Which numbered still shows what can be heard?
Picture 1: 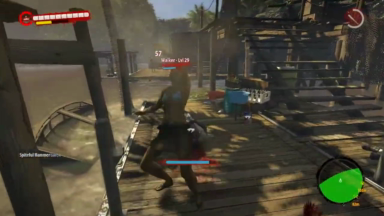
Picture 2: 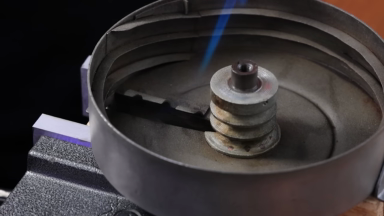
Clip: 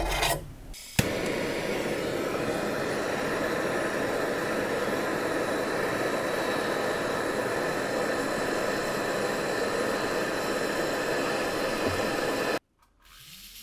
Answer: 2